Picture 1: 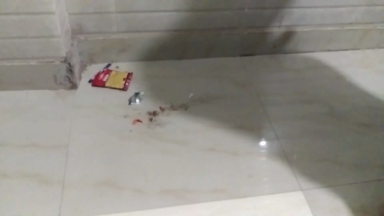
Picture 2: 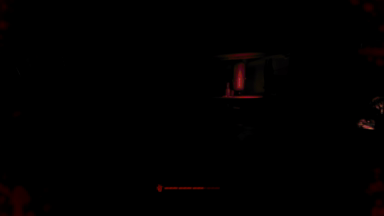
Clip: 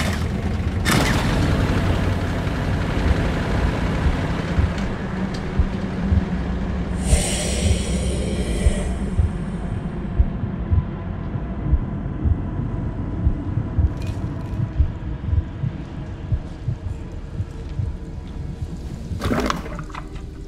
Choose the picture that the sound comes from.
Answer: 2